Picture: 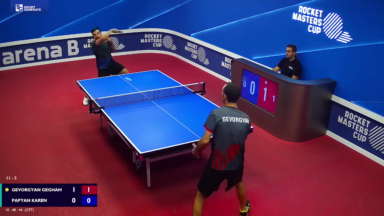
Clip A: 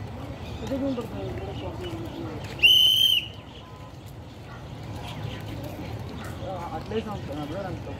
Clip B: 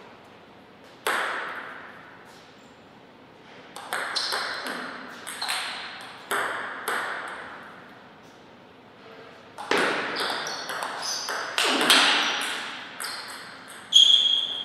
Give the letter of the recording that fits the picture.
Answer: B